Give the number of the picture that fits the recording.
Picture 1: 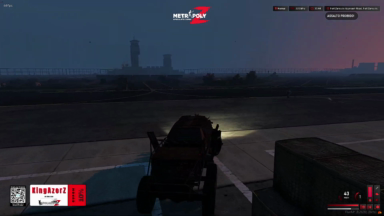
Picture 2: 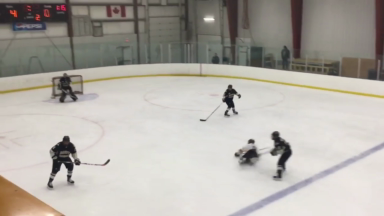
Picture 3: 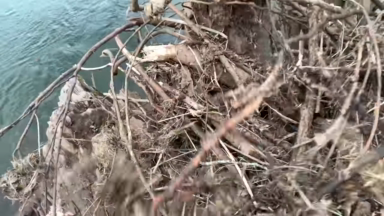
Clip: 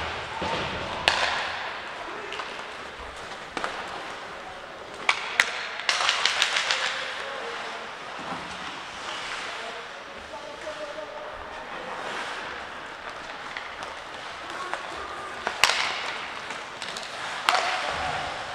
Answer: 2